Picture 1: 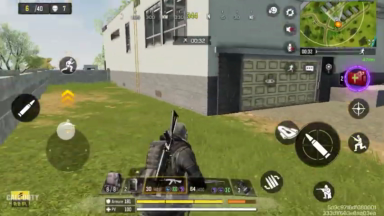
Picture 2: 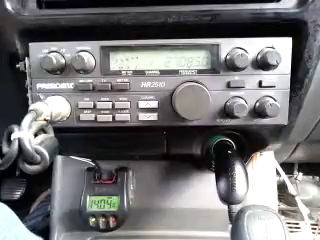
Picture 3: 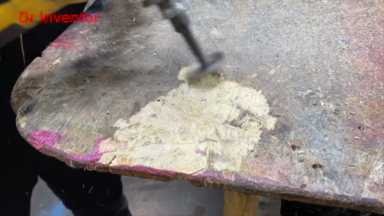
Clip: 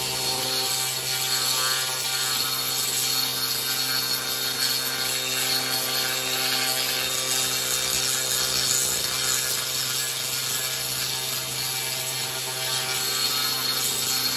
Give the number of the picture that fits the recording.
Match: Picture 3